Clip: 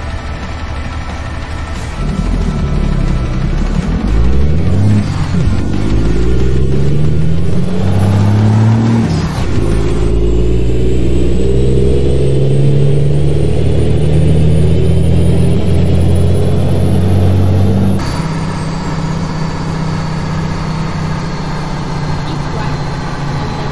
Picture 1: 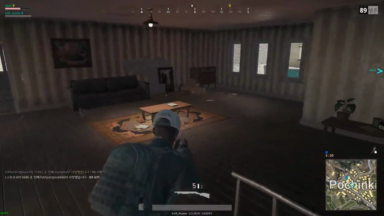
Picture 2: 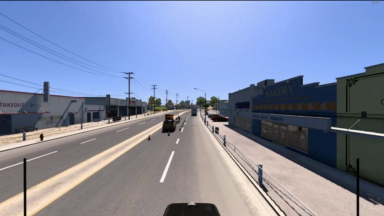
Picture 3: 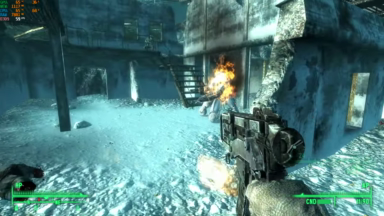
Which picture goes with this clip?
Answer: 2